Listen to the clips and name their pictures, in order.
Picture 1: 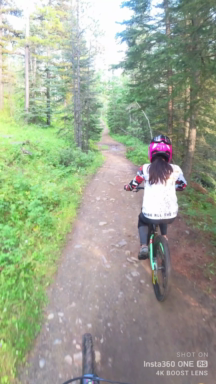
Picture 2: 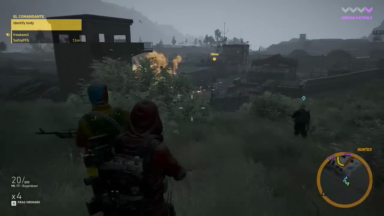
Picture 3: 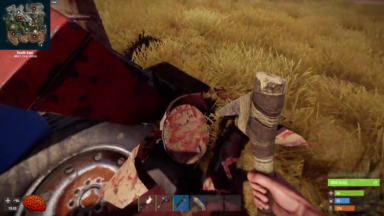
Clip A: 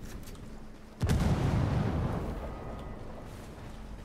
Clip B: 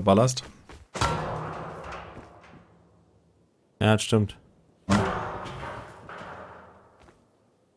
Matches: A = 2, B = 3